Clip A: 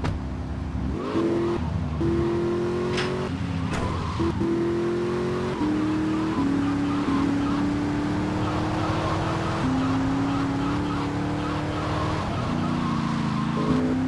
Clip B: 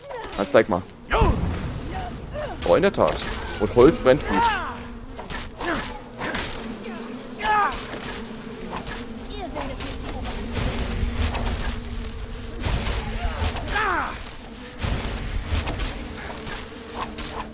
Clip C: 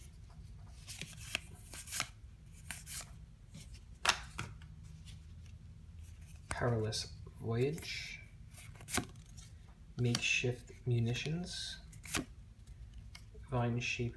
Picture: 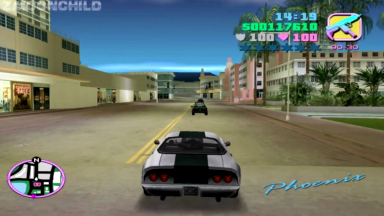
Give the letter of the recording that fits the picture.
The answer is A